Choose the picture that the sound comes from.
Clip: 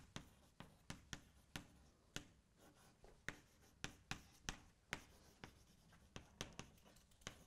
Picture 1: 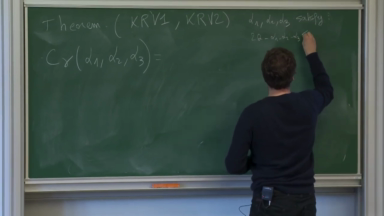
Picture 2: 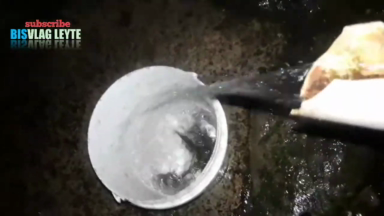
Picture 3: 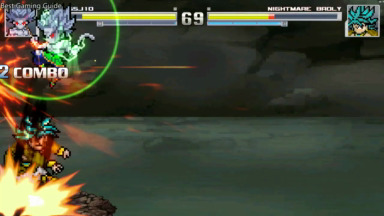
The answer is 1